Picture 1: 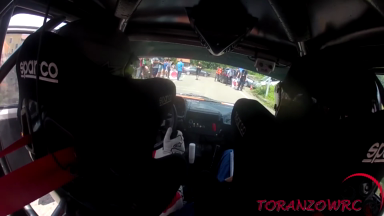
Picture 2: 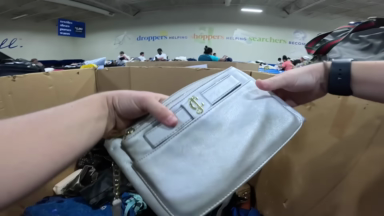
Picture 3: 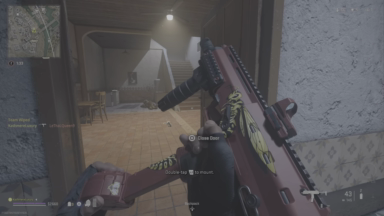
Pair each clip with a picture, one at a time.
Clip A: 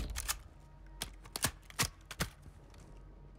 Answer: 3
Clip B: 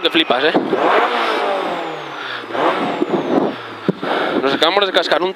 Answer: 1